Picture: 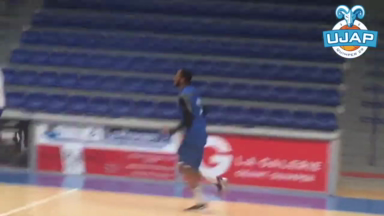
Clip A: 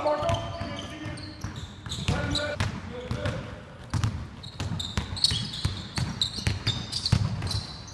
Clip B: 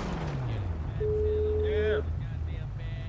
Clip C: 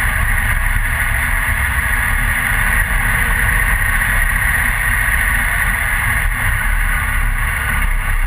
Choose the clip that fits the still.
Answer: A